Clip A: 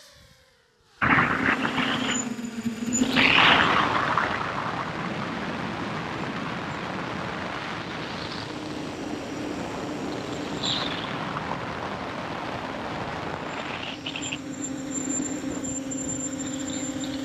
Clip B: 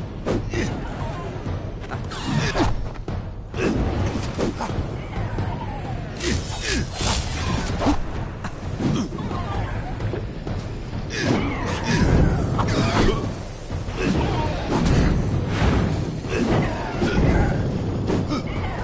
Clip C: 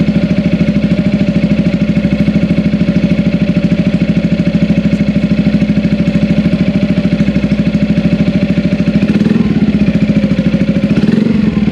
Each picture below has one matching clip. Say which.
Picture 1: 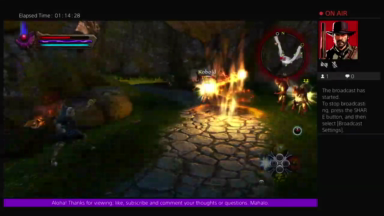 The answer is B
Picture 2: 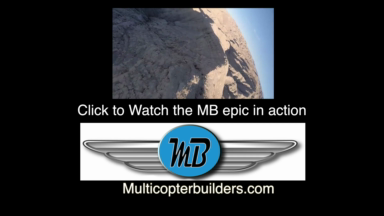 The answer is A